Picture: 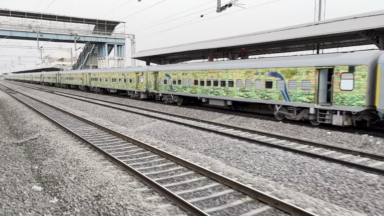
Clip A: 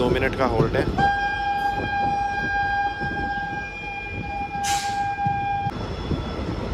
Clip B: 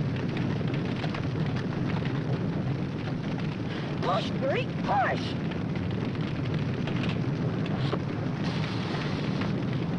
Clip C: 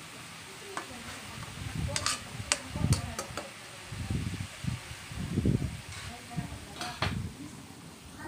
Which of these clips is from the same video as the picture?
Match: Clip A